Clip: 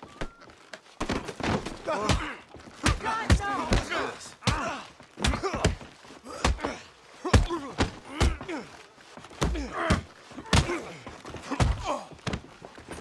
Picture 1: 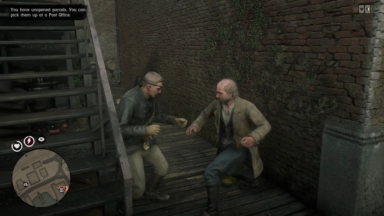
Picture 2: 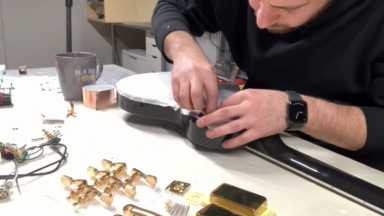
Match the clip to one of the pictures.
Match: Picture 1